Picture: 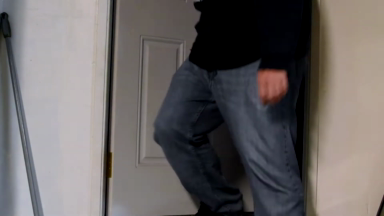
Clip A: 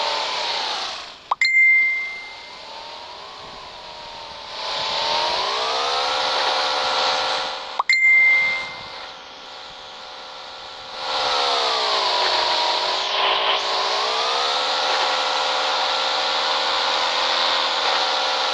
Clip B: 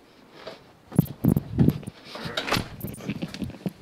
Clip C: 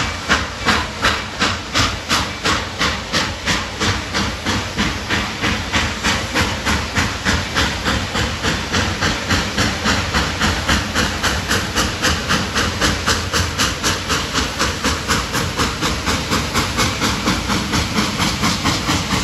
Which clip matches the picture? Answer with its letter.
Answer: B